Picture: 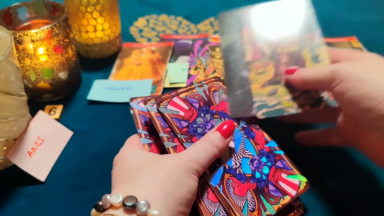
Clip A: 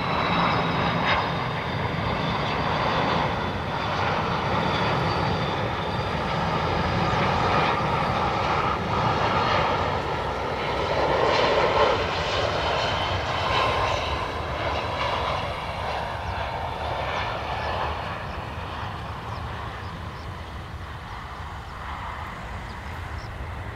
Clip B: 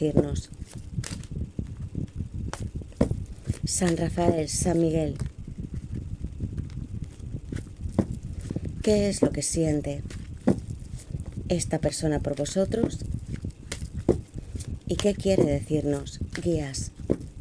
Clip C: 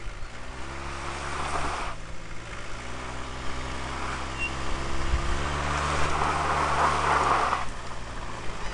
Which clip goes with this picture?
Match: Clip B